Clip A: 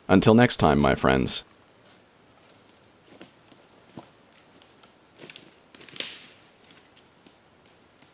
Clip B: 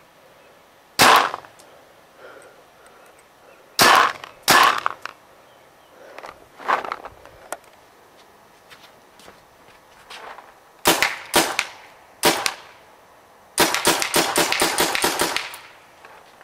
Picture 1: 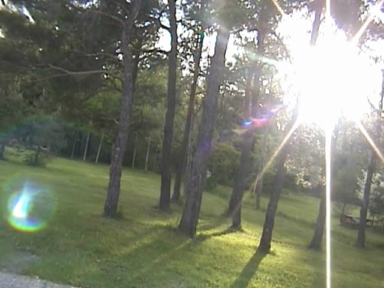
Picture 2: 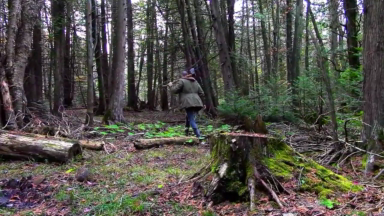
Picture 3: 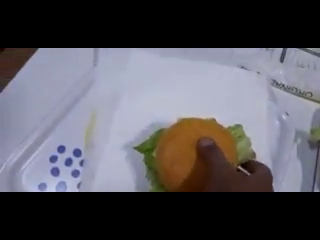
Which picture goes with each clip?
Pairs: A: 2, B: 1